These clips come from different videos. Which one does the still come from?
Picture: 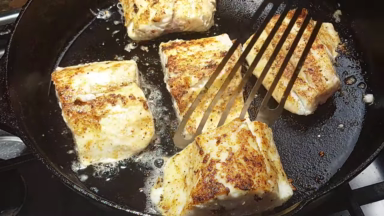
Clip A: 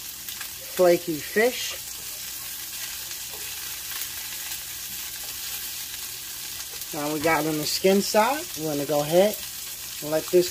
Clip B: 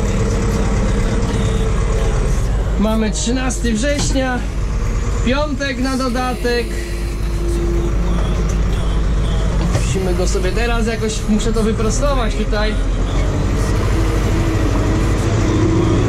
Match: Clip A